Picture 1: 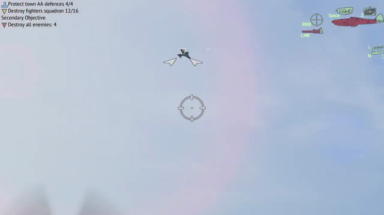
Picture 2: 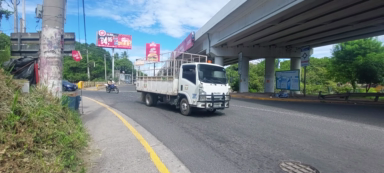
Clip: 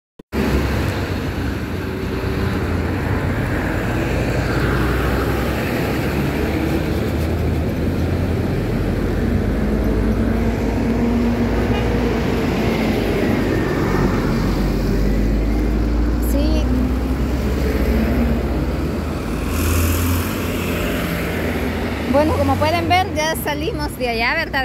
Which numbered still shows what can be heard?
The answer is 2